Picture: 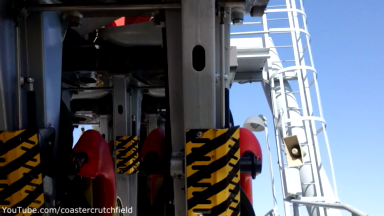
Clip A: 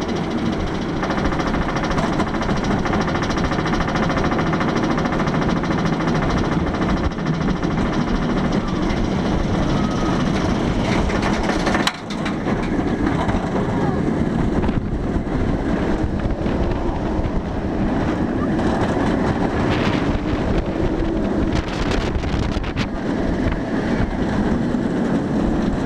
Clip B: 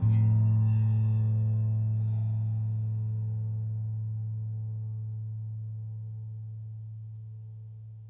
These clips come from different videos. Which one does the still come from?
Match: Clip A